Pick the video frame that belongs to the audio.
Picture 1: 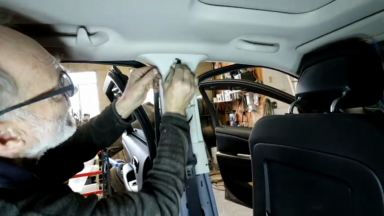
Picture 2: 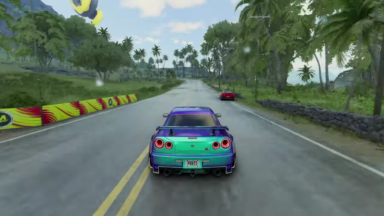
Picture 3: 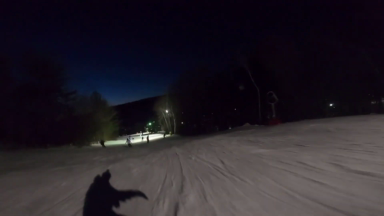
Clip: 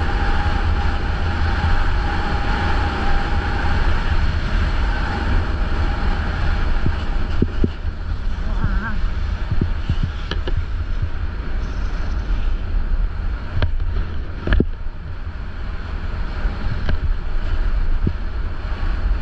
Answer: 3